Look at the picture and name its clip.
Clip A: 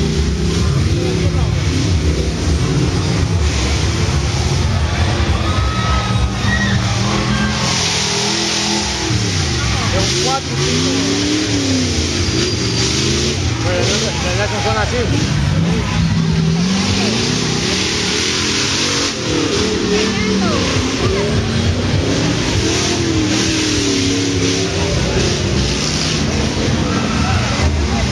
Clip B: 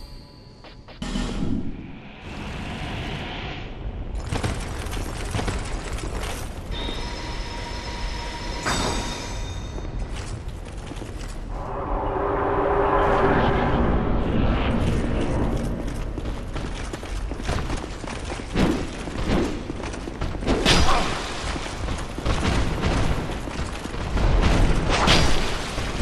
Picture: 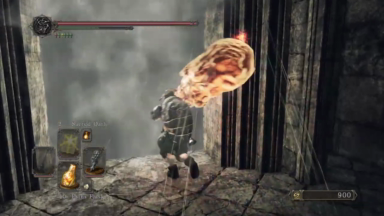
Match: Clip B